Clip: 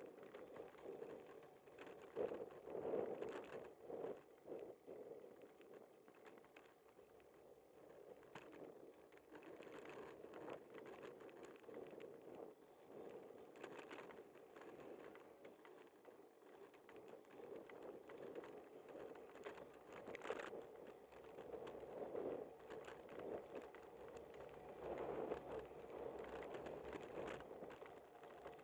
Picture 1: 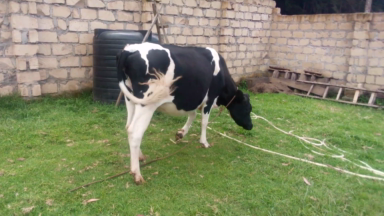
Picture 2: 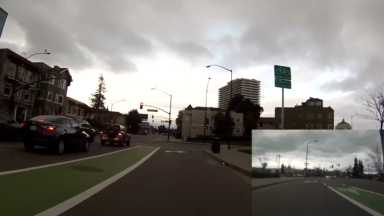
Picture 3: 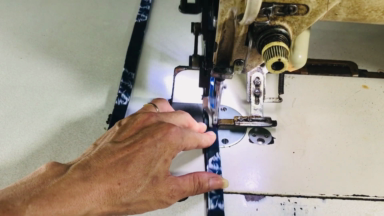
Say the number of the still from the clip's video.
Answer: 2